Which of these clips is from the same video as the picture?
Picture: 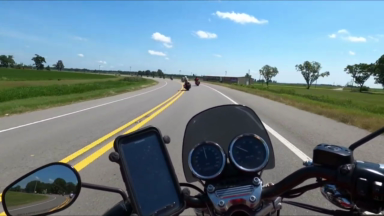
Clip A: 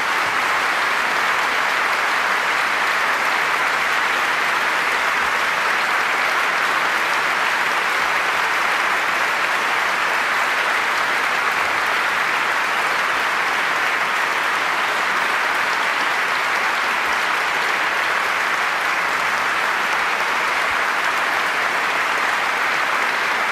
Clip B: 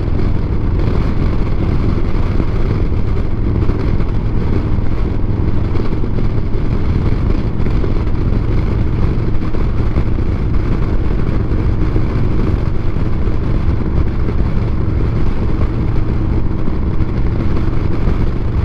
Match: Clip B